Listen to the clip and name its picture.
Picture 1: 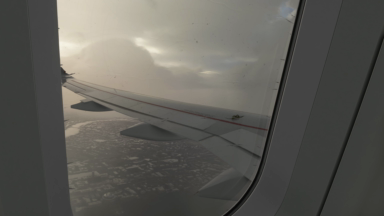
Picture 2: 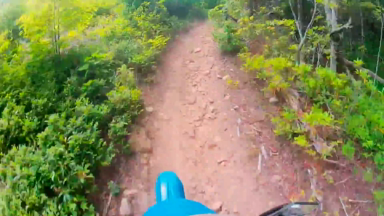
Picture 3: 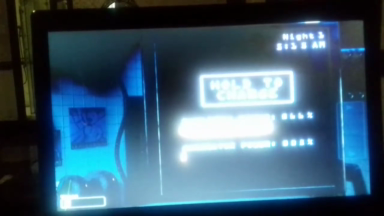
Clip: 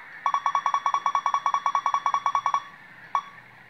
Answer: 3